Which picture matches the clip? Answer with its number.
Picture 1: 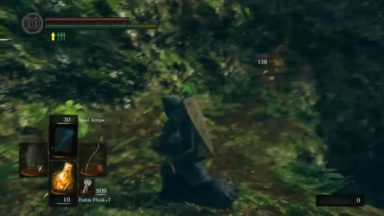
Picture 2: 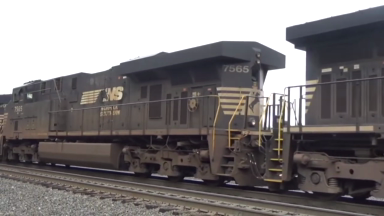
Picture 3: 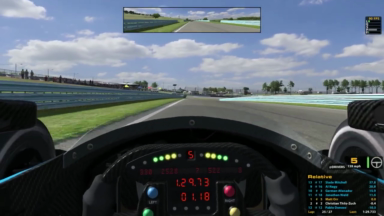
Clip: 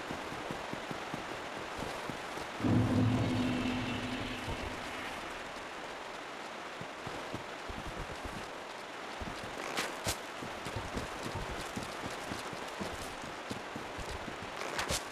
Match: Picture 1